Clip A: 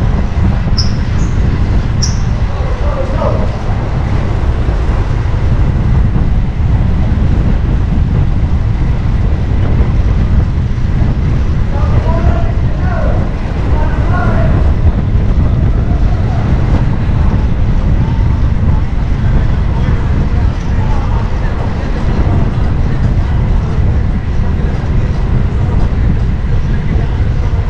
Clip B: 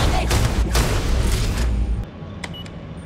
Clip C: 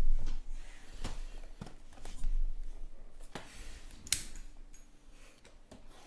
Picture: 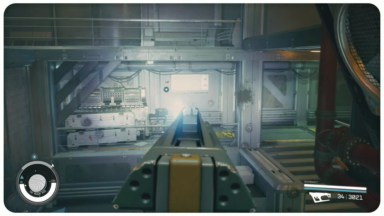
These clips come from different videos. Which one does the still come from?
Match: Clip B